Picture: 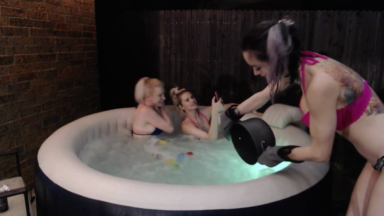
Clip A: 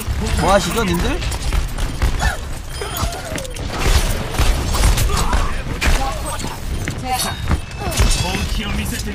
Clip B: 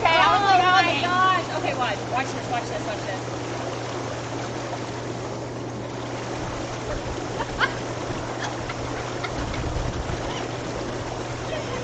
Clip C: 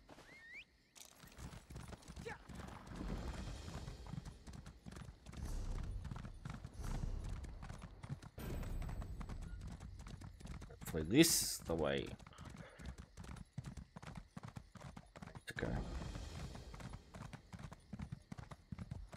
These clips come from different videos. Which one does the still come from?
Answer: B